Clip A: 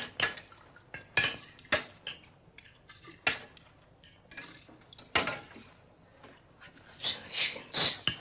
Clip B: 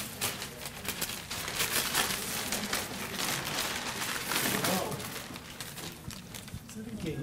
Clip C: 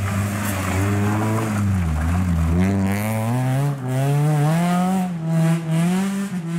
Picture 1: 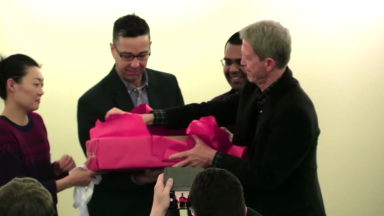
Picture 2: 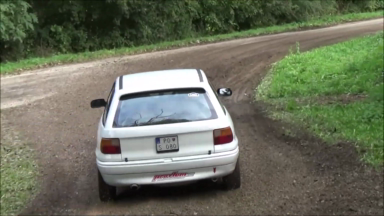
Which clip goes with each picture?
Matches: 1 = B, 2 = C